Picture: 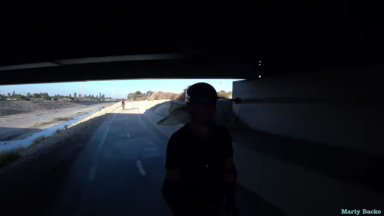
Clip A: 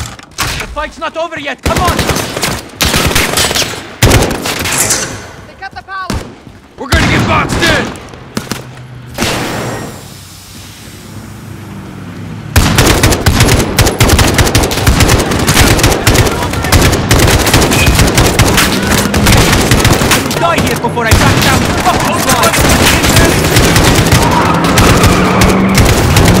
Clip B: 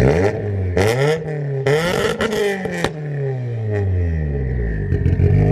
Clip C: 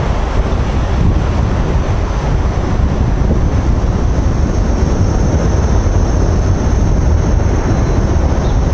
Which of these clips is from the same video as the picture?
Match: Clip C